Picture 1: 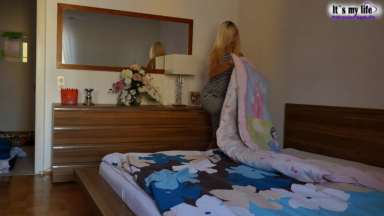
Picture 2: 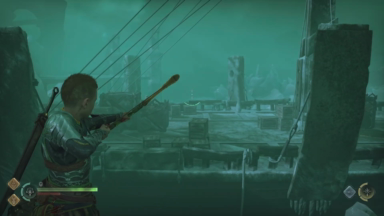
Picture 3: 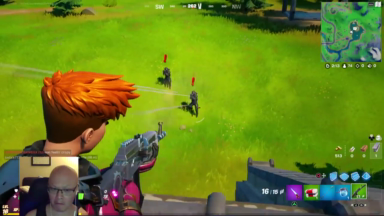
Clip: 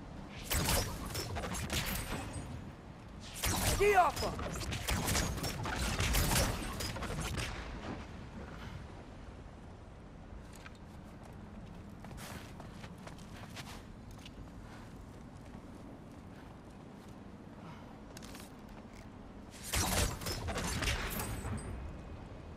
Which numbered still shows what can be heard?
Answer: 2